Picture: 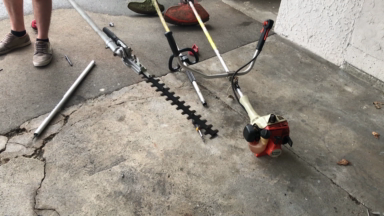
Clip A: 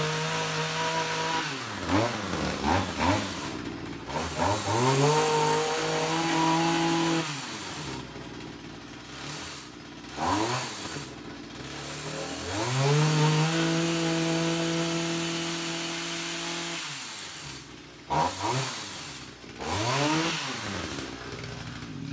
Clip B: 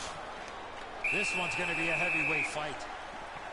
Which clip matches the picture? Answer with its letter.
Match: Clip A